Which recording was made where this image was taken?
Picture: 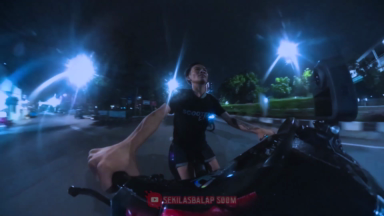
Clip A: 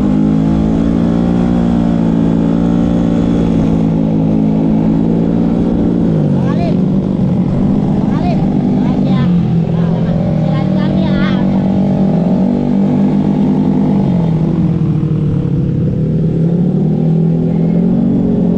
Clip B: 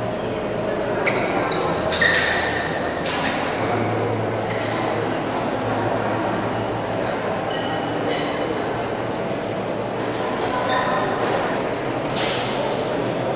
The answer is A